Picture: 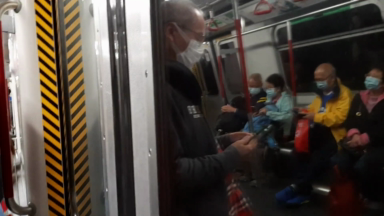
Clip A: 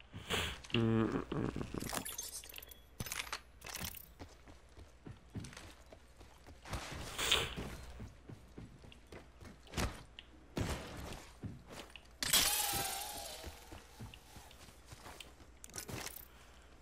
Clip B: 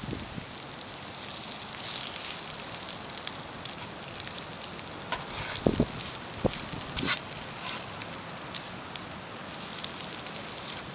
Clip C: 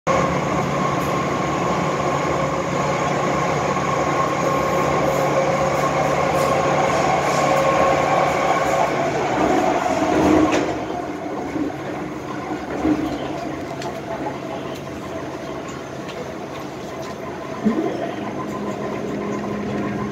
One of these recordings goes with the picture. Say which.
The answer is C